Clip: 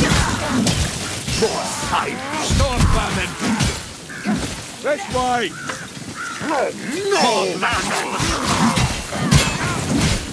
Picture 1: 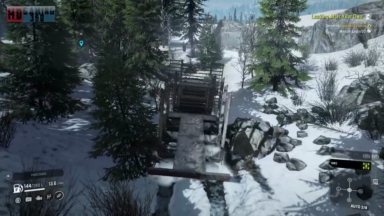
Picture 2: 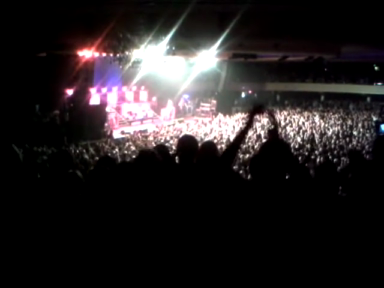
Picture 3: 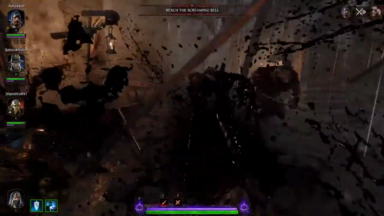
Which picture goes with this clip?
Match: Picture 3